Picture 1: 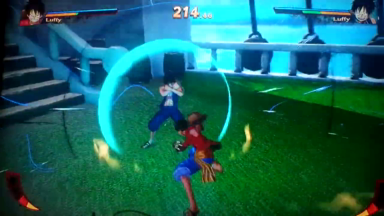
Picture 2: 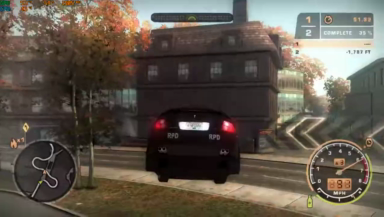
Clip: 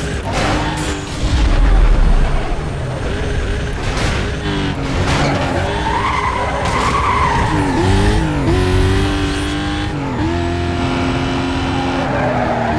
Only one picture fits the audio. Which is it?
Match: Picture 2